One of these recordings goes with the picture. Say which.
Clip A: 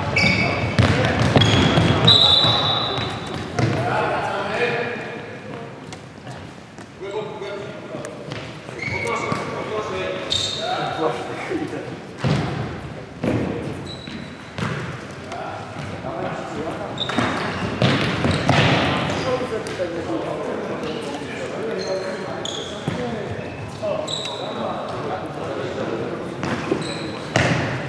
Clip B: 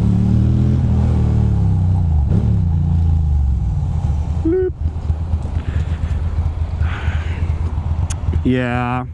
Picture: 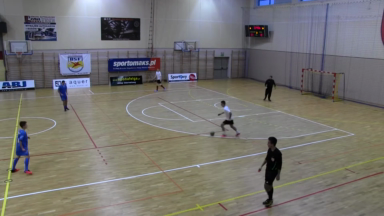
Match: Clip A